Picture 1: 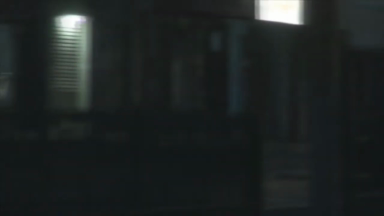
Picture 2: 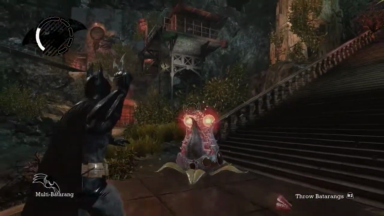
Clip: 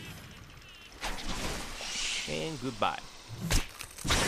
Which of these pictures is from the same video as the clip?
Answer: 2